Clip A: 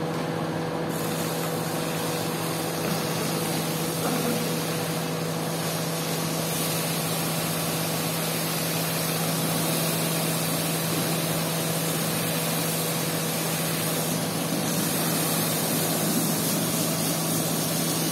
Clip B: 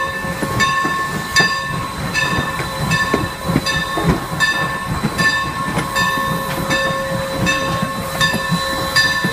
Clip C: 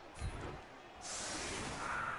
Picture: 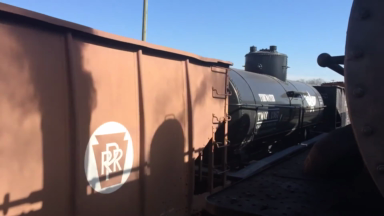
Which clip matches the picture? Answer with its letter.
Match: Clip B